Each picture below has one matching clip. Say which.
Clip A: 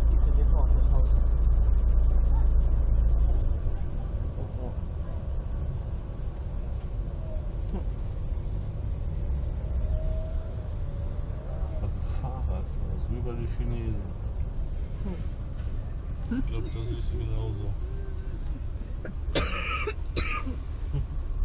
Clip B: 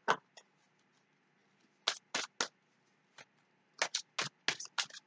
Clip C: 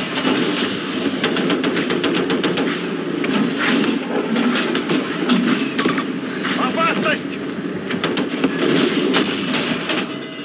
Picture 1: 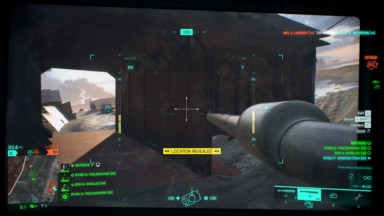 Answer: C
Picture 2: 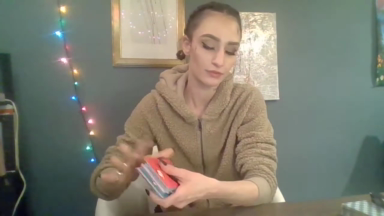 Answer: B